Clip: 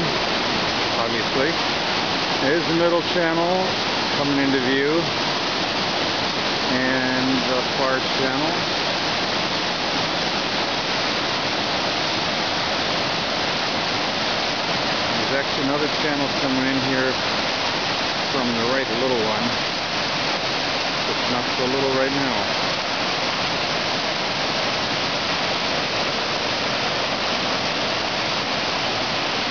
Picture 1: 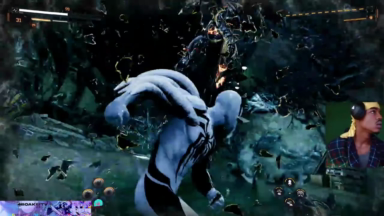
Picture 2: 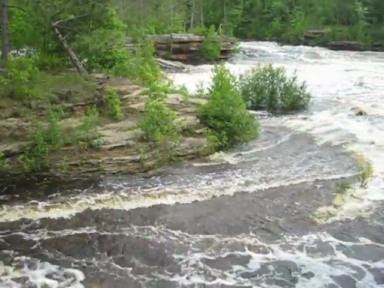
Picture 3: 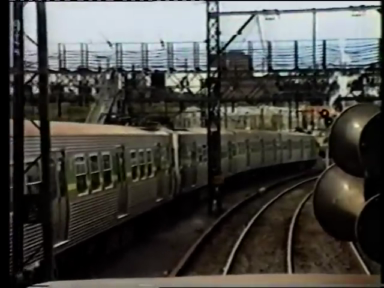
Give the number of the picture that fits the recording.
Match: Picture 2